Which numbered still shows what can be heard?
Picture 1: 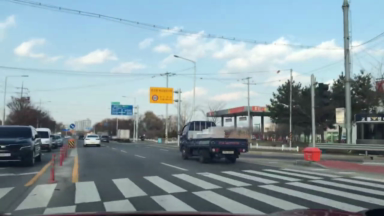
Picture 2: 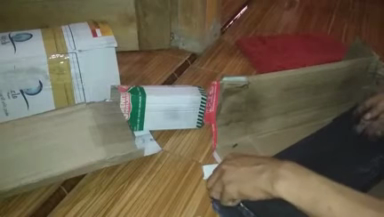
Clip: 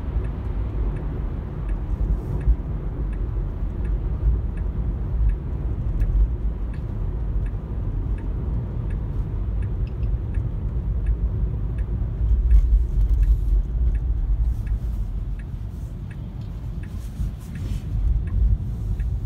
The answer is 1